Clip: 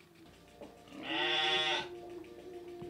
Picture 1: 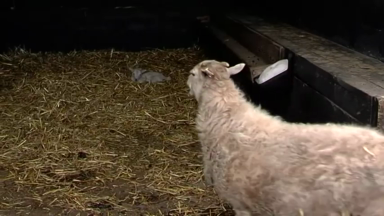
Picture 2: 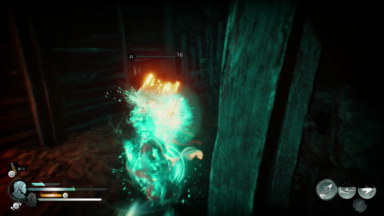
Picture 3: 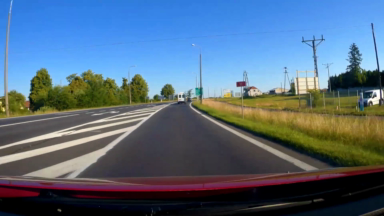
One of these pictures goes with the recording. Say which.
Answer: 1